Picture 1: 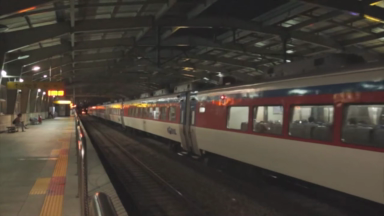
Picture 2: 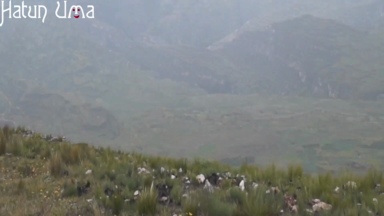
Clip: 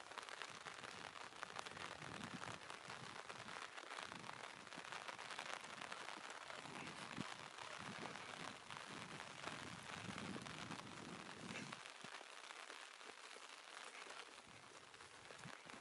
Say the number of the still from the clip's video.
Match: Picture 2